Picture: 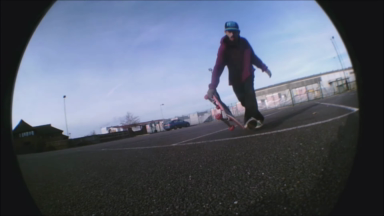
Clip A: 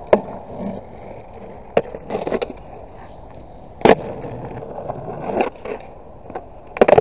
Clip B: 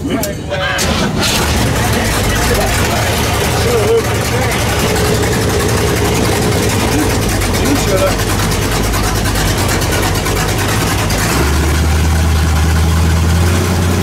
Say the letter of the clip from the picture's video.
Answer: A